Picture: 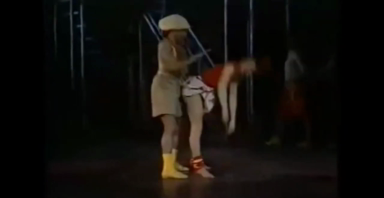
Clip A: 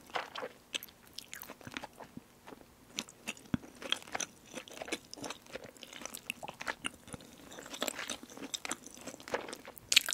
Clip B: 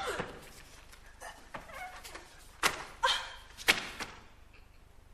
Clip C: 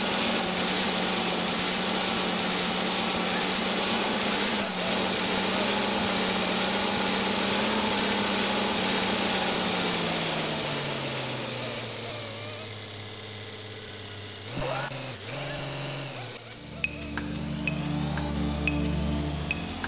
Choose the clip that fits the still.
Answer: B